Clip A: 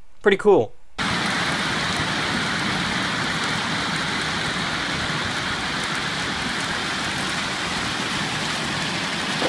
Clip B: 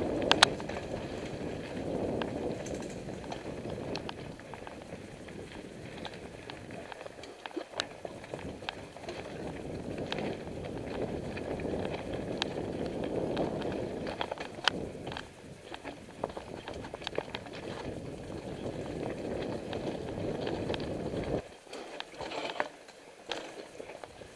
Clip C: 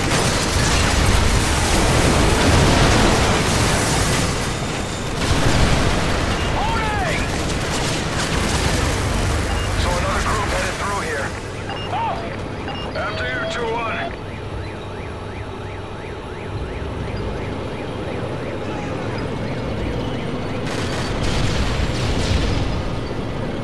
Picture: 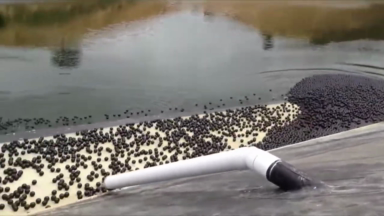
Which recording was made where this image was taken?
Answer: A